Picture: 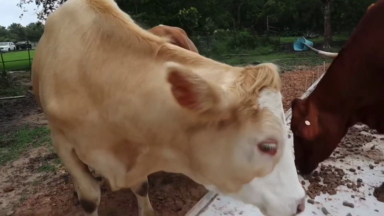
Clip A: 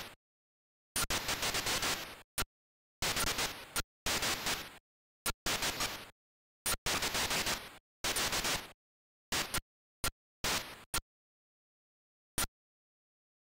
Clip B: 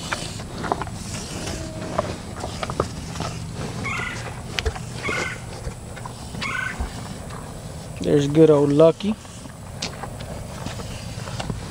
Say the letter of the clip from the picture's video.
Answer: B